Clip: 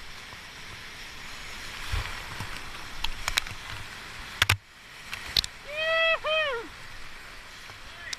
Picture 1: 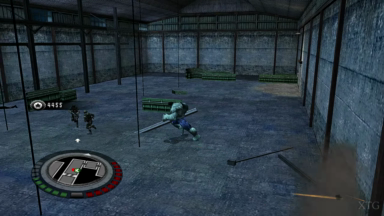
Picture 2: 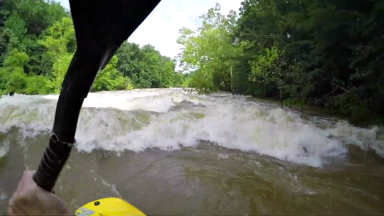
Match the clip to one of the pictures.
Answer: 2